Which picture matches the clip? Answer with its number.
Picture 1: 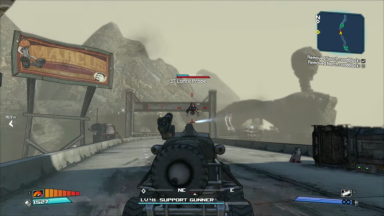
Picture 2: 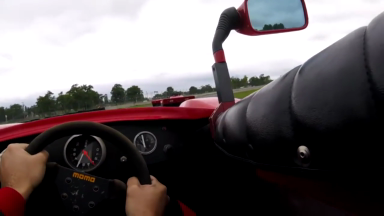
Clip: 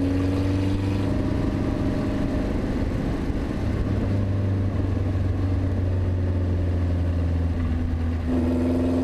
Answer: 2